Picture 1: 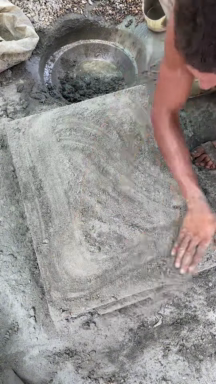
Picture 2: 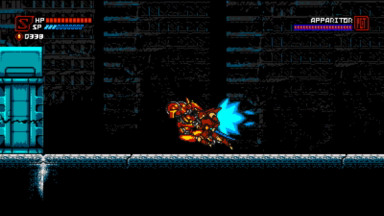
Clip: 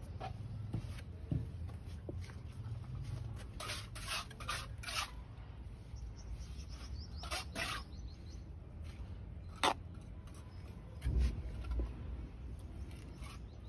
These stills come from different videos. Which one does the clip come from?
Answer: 1